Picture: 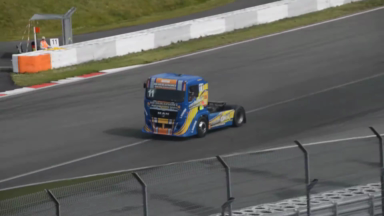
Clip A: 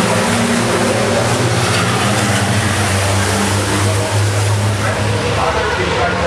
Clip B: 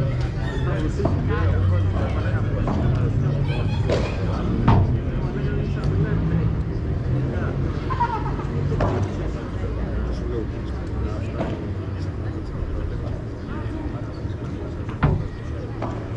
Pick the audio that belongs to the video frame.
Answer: A